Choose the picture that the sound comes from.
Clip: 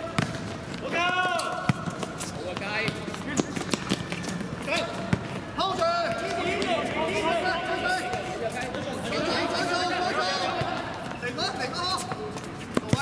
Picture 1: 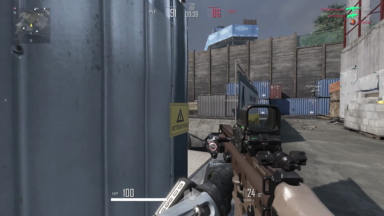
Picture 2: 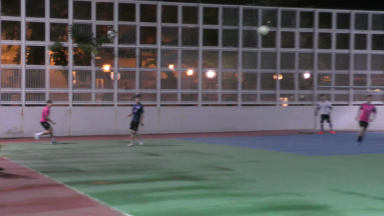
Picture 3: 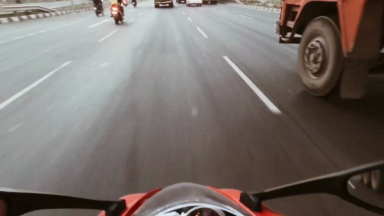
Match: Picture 2